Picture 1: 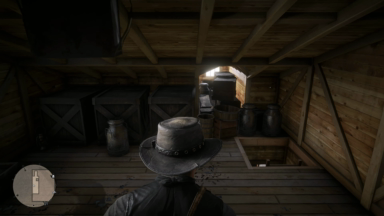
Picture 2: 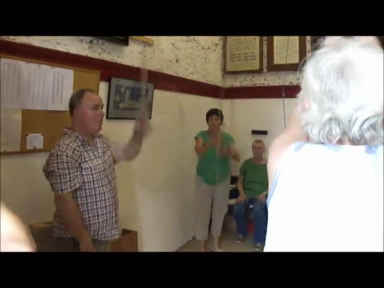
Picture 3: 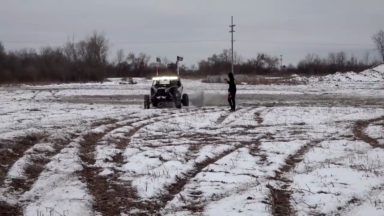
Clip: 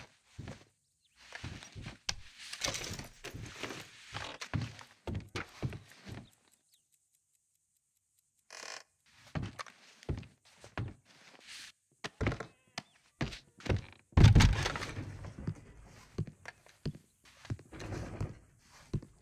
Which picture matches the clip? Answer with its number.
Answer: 1